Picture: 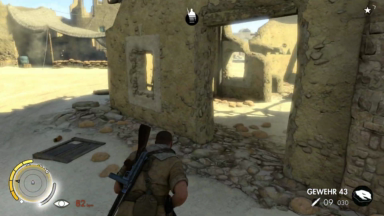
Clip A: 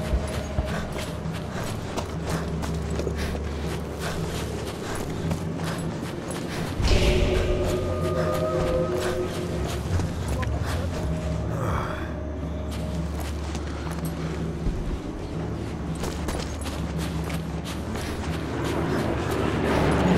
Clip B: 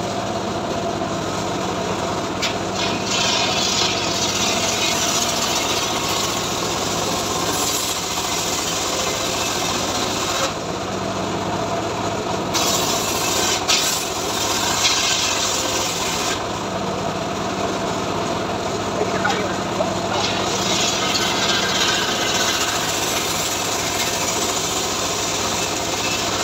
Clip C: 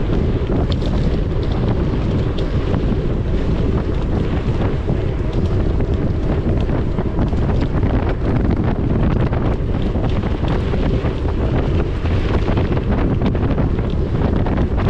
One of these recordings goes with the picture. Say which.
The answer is A